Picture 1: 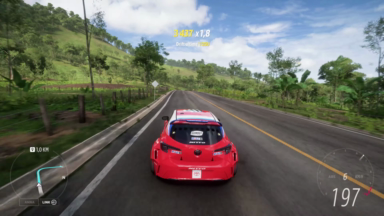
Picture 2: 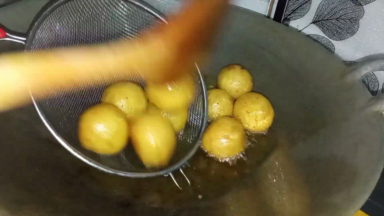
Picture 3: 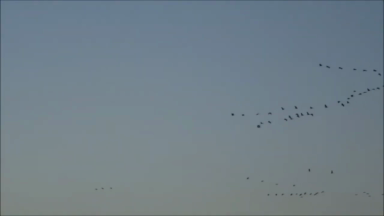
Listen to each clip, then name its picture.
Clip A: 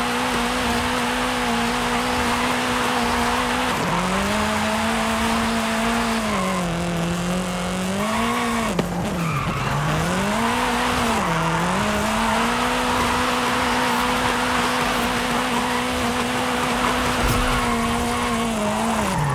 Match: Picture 1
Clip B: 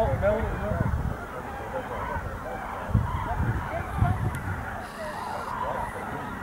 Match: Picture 3